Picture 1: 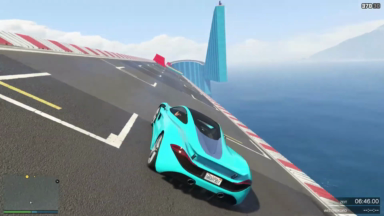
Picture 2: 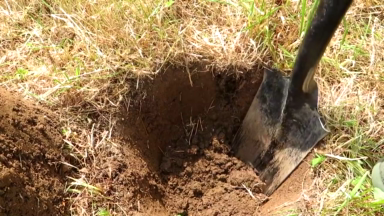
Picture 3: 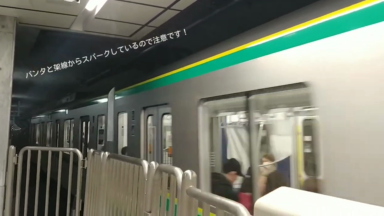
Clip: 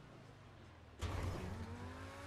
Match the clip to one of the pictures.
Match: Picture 1